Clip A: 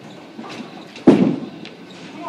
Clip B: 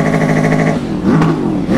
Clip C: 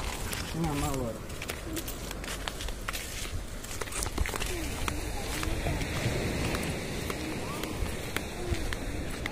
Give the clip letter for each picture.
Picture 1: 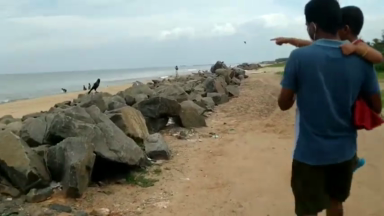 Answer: C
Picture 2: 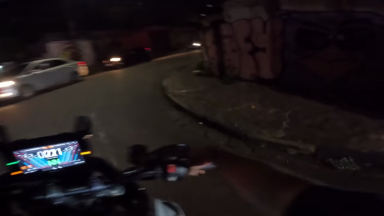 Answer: B